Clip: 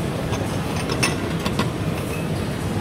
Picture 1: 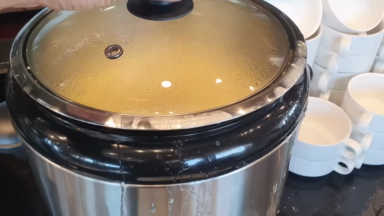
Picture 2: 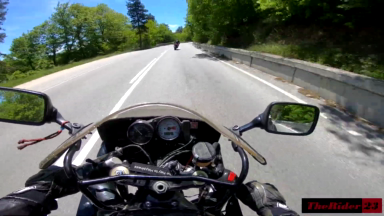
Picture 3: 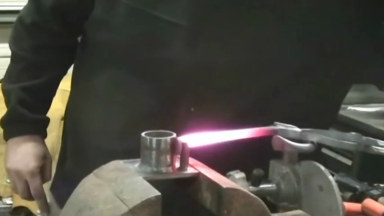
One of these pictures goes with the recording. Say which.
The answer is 1